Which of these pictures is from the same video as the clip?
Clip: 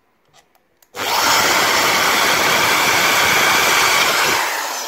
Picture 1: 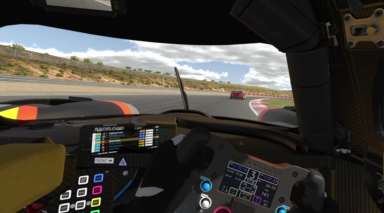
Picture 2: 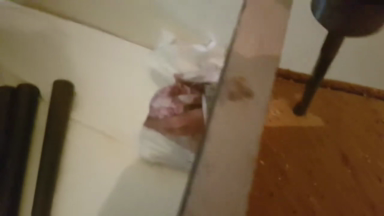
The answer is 2